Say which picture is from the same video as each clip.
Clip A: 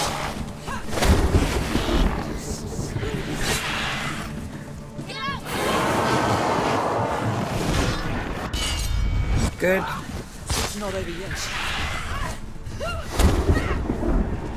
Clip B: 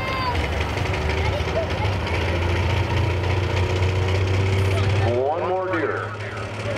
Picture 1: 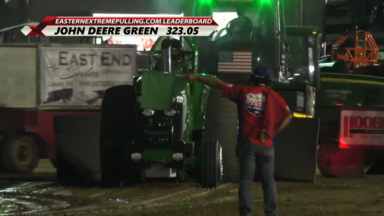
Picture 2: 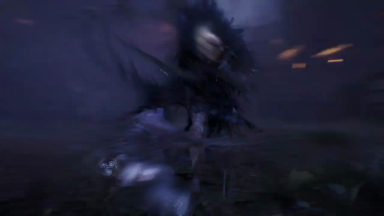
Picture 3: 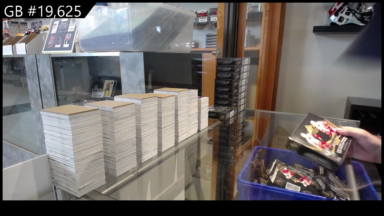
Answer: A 2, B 1